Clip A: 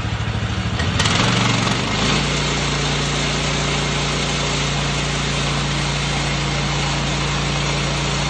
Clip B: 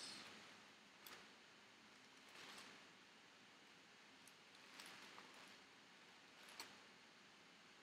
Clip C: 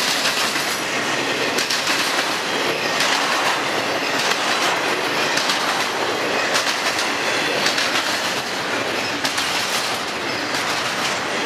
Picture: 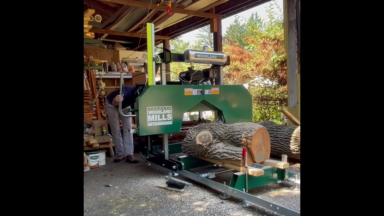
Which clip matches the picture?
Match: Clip A